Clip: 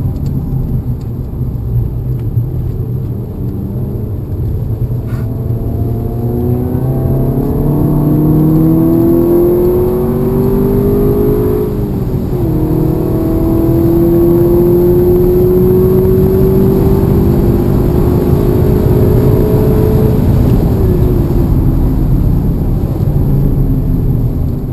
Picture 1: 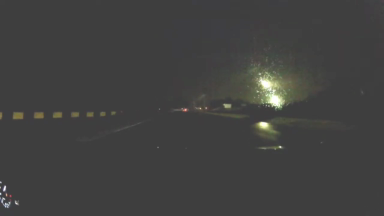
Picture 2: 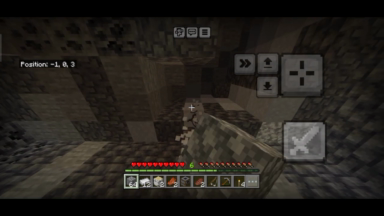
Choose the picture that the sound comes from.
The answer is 1